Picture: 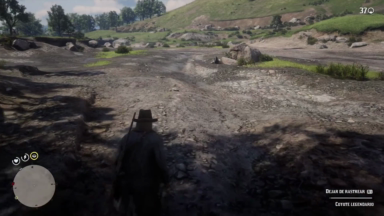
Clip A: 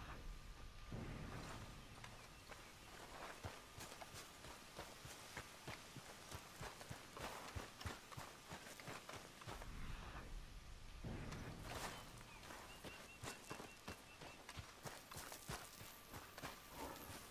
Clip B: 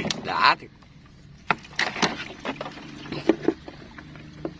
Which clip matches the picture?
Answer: A